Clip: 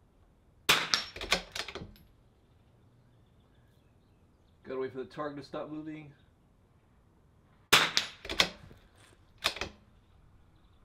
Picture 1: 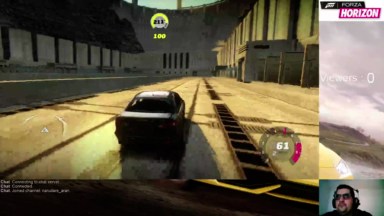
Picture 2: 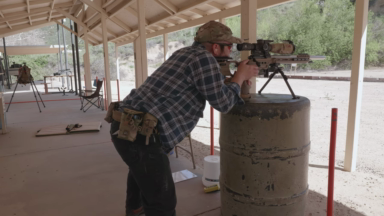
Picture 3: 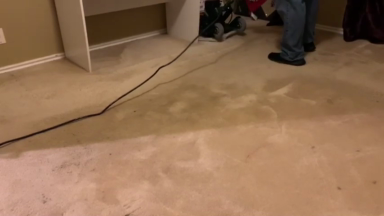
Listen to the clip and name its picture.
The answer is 2